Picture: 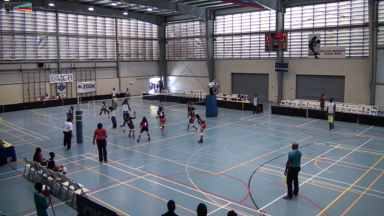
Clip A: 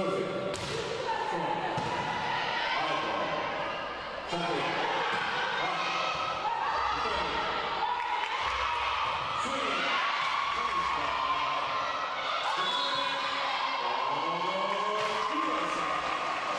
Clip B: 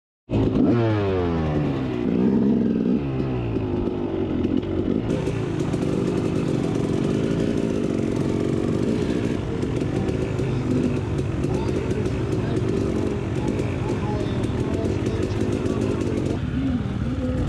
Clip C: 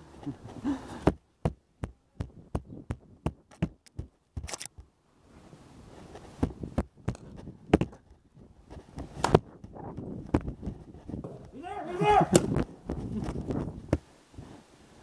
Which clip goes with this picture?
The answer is A